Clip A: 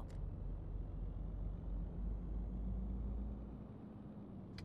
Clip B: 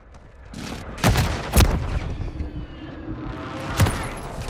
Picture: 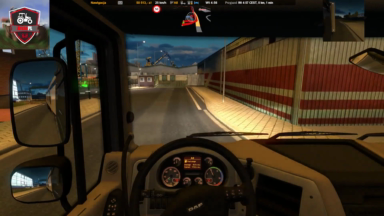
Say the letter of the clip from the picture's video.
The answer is A